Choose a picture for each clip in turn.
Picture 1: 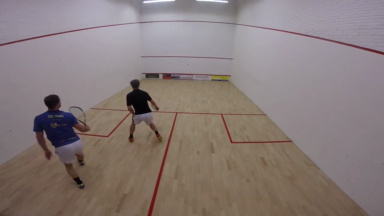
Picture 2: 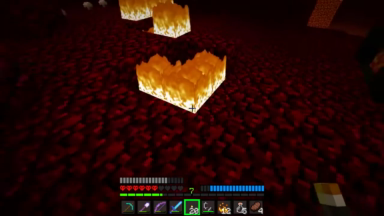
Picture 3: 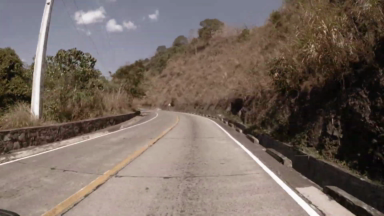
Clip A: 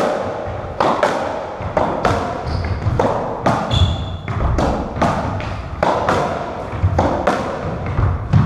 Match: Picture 1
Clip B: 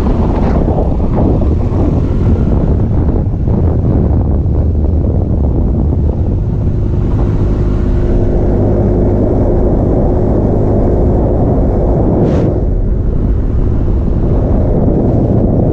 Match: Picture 3